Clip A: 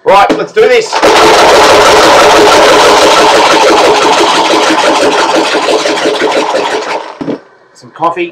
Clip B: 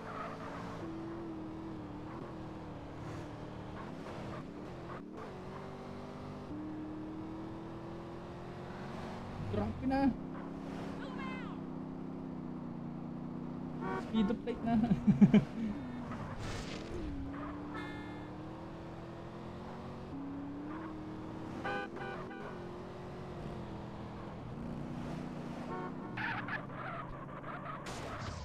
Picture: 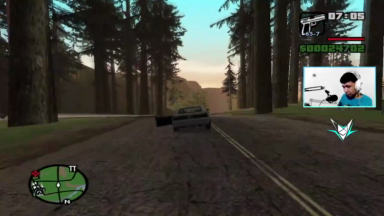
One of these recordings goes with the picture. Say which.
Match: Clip B